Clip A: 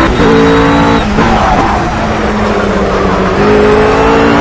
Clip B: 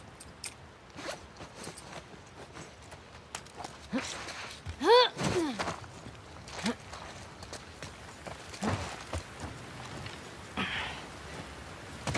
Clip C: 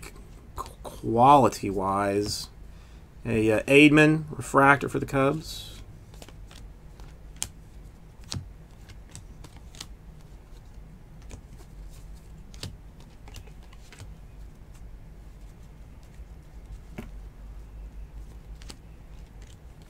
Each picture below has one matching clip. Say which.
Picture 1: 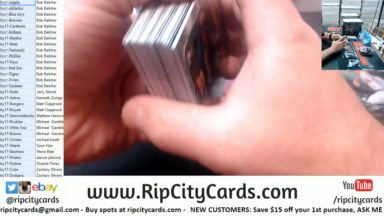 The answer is C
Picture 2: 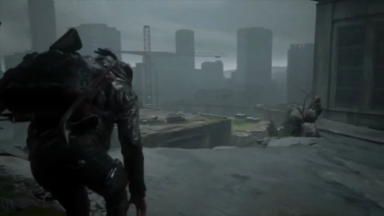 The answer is B